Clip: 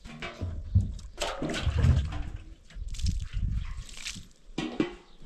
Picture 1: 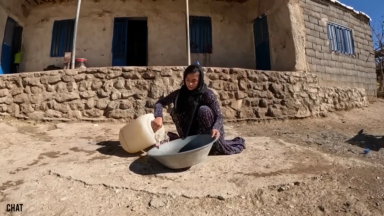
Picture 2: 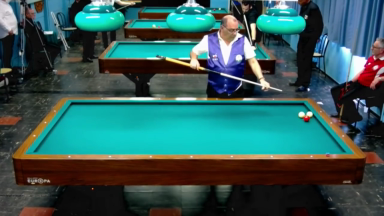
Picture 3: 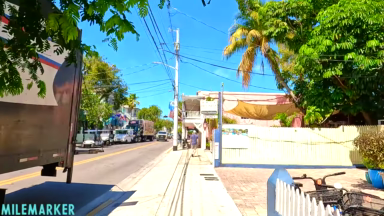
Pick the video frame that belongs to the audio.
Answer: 1